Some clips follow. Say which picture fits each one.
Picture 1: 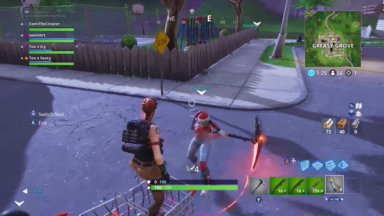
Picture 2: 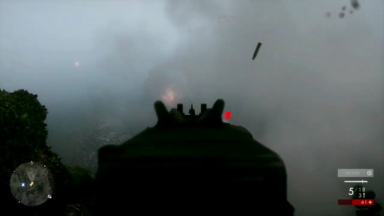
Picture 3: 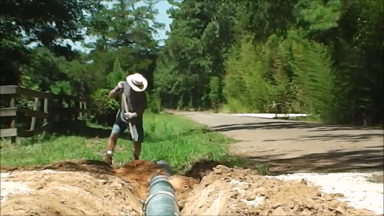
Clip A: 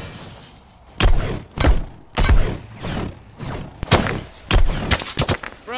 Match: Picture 1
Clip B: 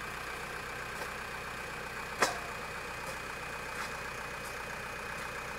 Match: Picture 3